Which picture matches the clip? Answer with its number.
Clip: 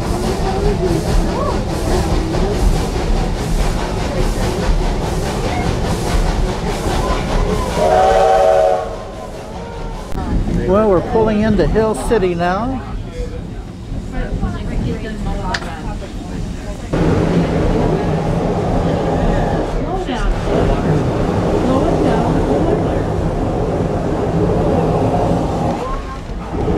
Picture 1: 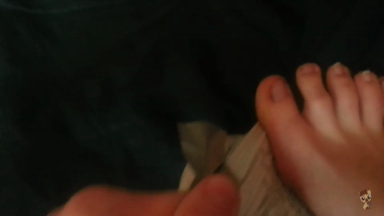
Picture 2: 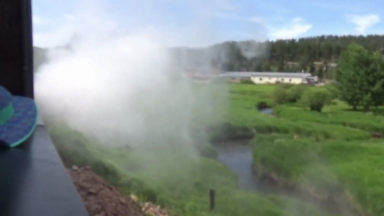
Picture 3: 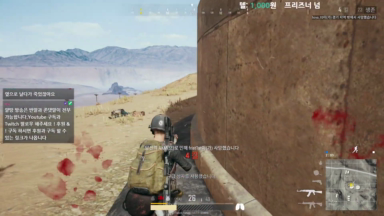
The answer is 2